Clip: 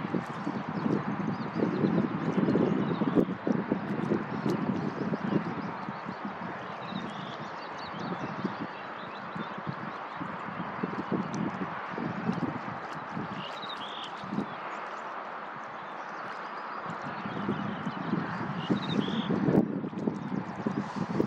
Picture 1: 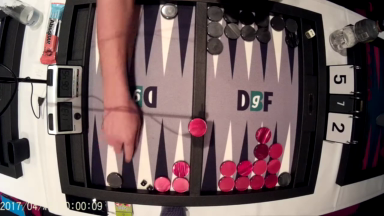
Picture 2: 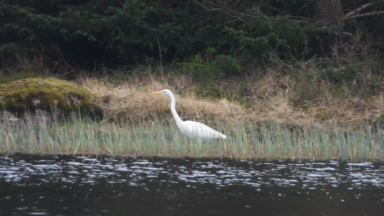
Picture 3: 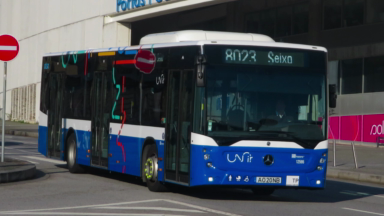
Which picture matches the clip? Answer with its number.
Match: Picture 2